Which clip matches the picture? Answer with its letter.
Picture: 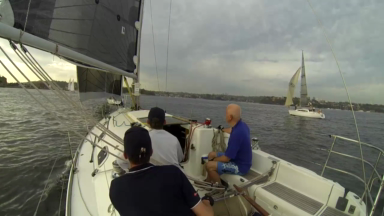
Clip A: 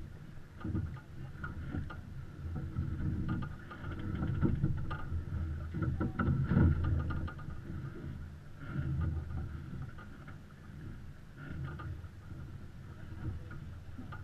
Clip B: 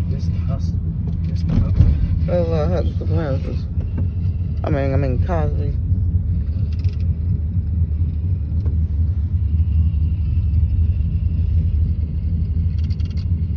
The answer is A